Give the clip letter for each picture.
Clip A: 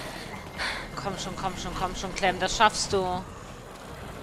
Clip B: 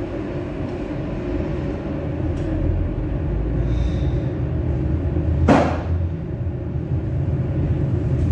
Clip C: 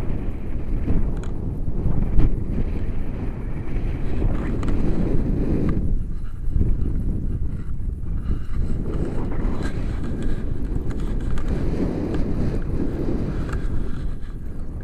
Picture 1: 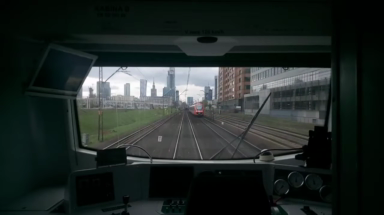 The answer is B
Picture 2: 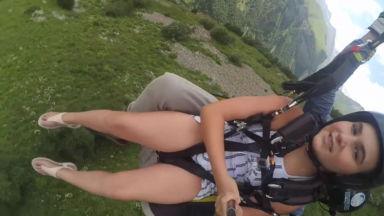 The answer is C